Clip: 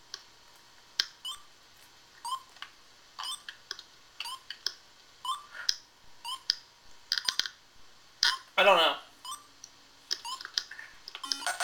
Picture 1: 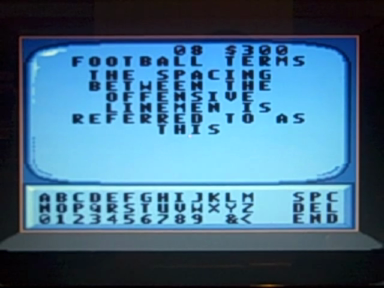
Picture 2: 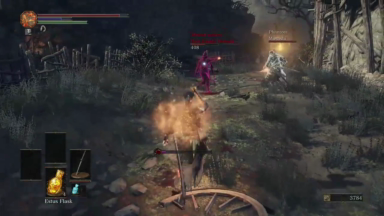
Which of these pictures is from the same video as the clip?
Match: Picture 1